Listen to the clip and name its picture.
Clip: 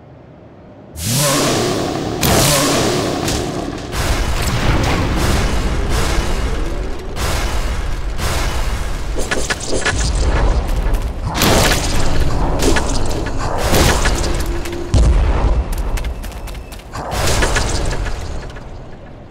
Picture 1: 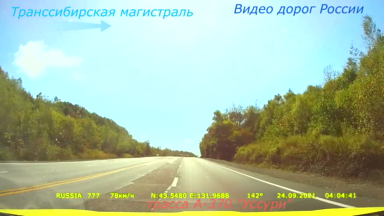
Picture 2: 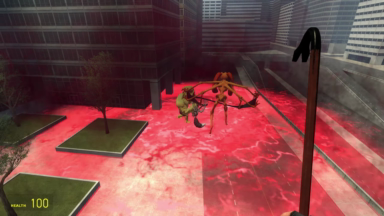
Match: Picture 2